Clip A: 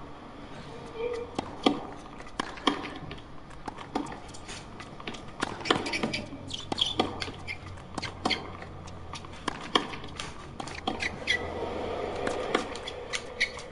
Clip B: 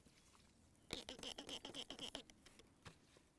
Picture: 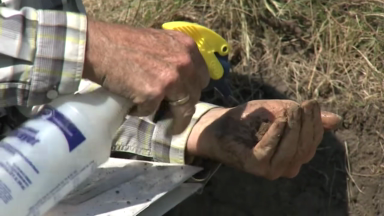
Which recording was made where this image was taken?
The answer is B